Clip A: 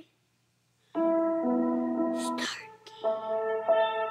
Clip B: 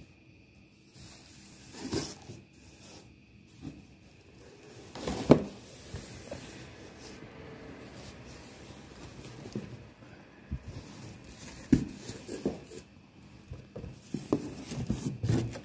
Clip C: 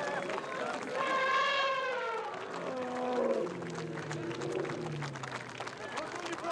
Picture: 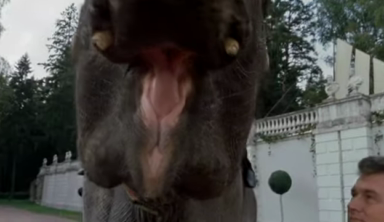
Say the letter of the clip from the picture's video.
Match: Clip C